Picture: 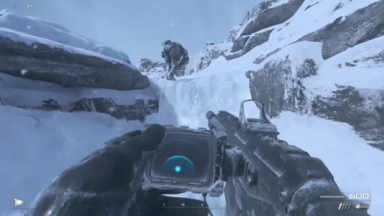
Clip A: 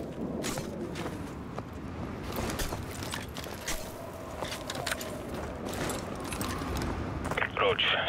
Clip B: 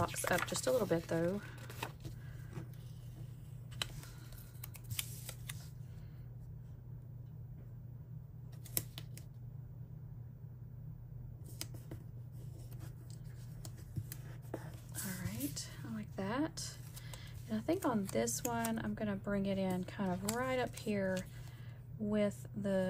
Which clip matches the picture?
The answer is A